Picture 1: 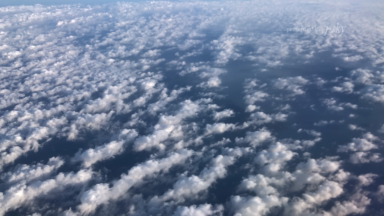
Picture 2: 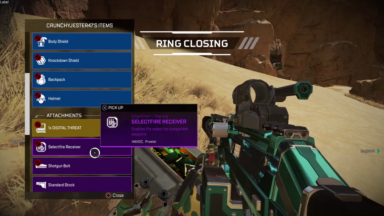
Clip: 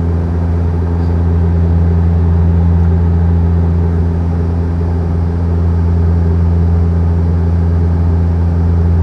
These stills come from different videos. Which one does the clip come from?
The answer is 1